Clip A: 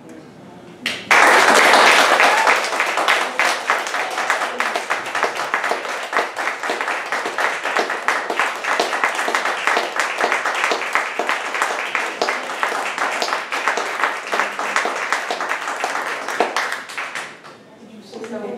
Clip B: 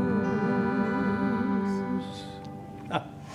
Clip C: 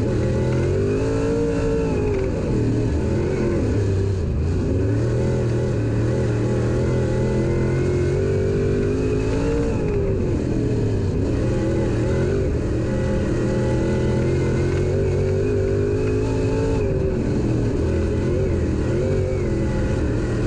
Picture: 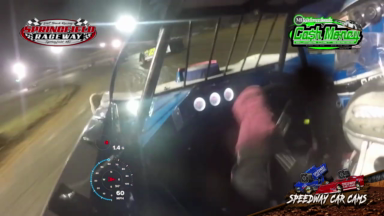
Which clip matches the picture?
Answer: C